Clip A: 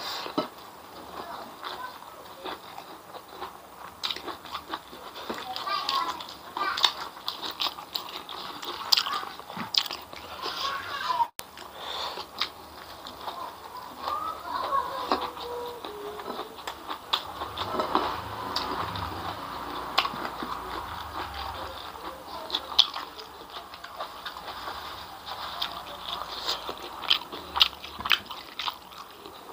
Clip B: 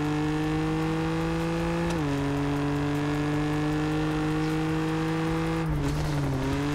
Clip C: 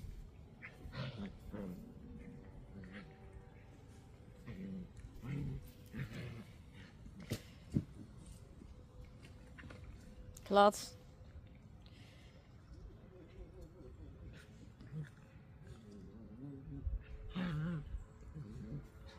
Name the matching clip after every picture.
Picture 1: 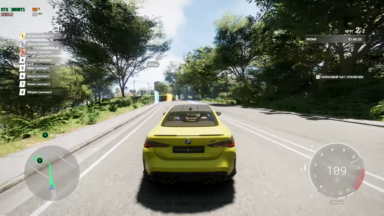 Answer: B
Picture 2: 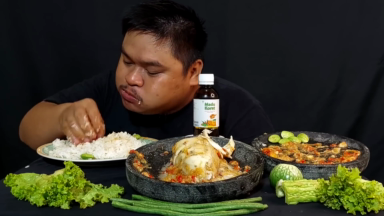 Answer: A